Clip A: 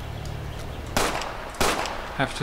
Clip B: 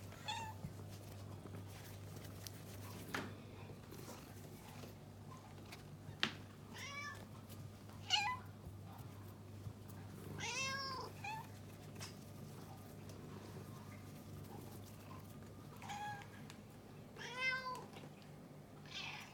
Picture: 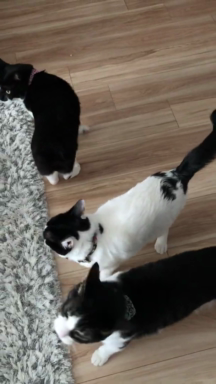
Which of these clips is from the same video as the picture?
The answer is B